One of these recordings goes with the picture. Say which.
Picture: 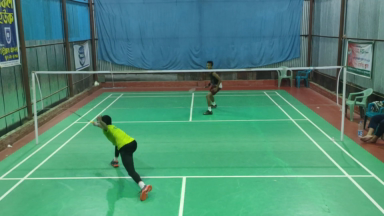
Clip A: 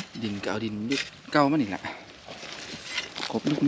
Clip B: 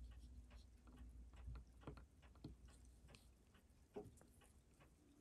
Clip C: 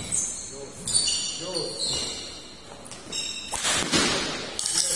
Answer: C